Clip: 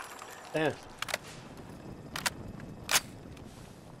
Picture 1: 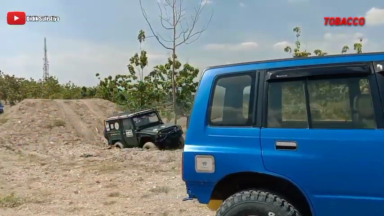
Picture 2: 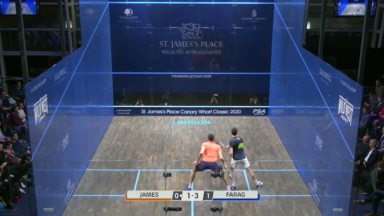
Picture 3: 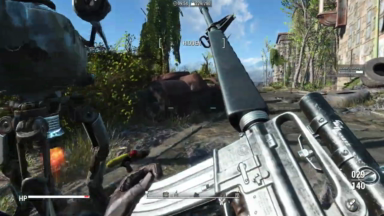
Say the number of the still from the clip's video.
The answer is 3